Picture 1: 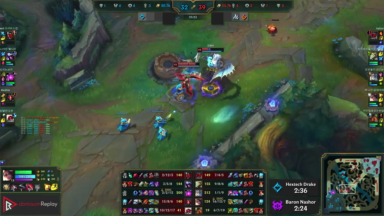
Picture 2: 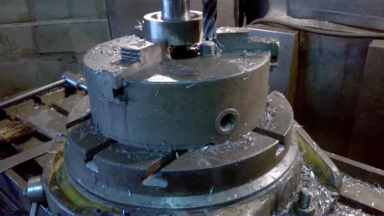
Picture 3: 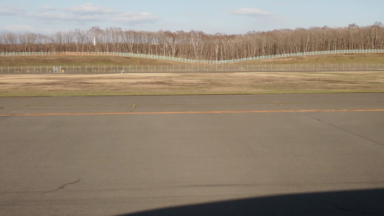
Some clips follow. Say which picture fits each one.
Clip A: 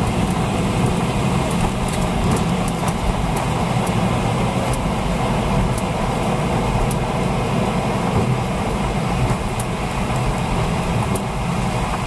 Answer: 3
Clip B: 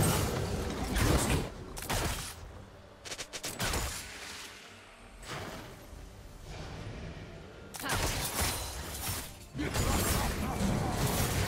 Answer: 1